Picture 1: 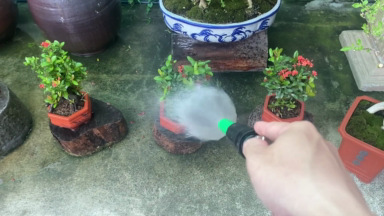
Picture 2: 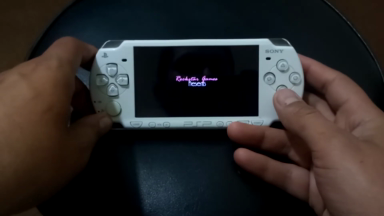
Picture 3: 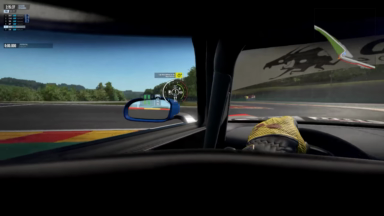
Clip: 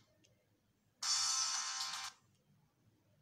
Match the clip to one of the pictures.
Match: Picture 2